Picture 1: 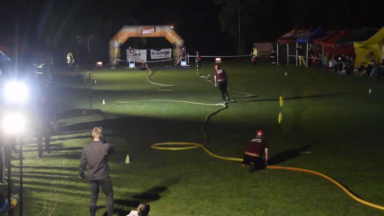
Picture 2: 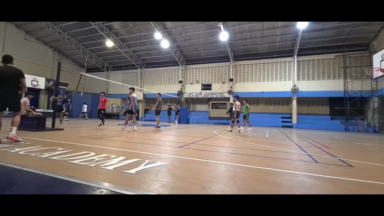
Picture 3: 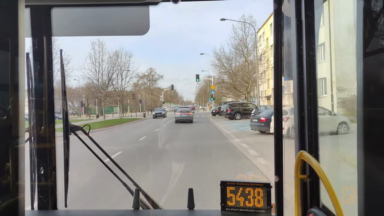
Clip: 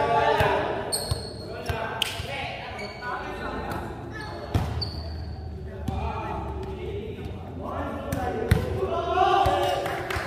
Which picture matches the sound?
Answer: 2